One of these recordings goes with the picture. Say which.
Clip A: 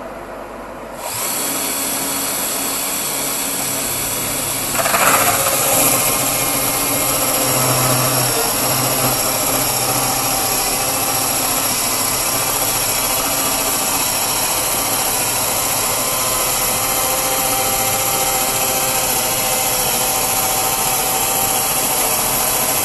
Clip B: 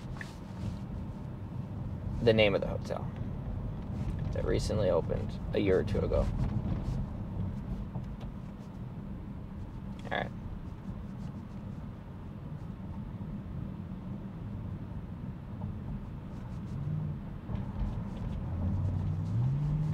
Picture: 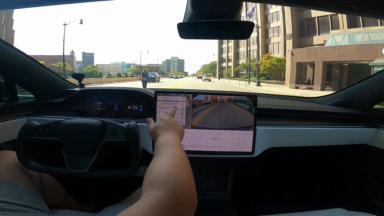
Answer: B